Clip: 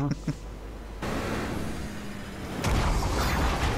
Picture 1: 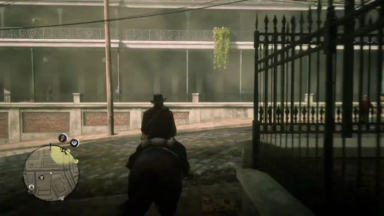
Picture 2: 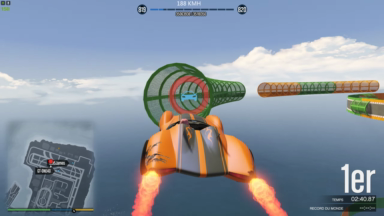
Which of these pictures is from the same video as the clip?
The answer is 2